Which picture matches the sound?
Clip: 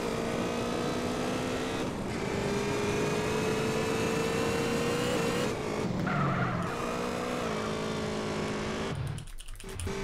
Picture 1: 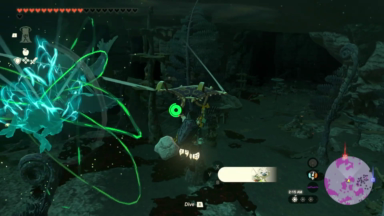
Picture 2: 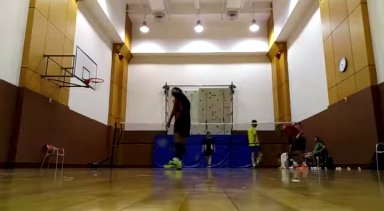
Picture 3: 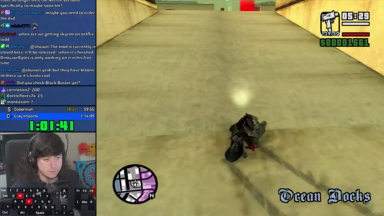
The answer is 3